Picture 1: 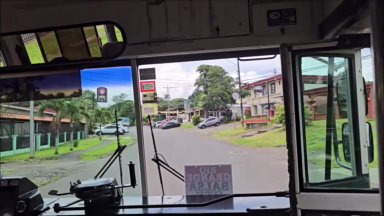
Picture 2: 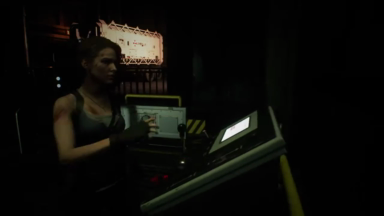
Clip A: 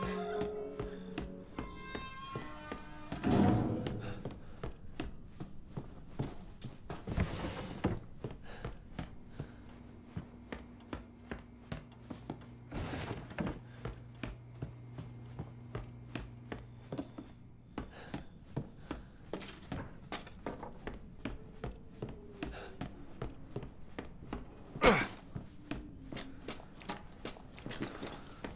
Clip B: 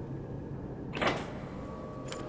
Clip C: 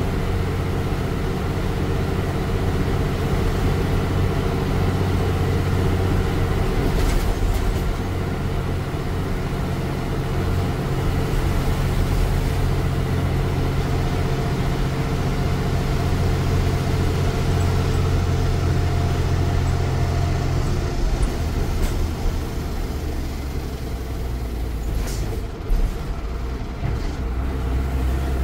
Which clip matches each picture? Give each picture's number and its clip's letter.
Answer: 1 C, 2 B